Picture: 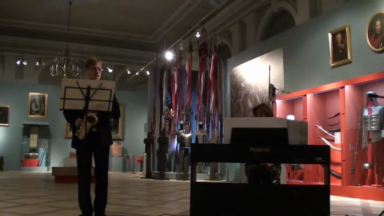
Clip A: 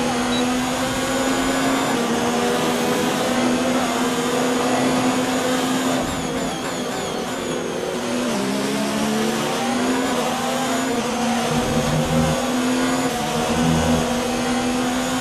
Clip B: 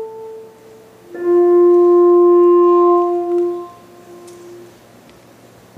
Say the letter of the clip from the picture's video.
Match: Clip B